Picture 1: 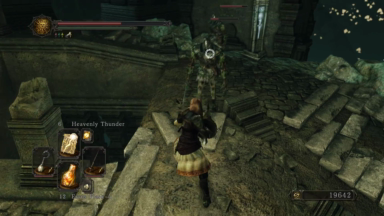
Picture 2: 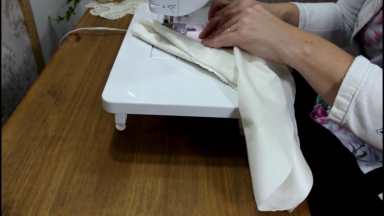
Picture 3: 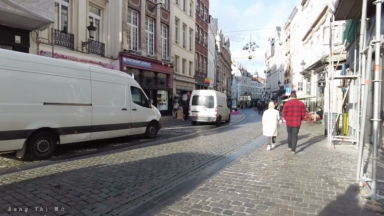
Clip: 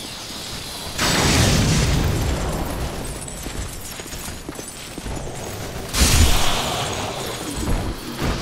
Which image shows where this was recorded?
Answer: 1